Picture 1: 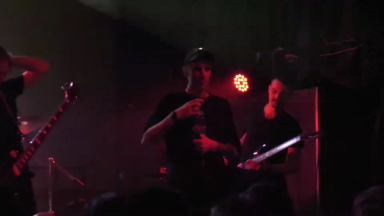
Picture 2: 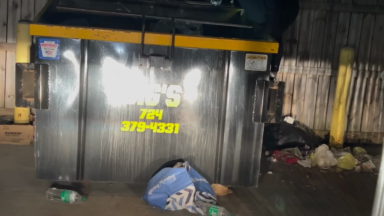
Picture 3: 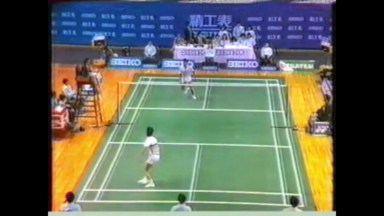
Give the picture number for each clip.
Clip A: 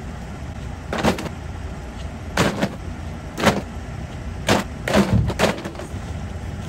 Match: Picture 2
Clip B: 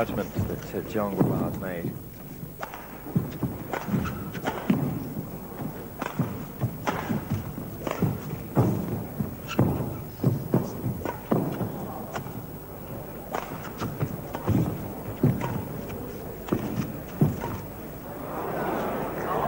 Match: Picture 3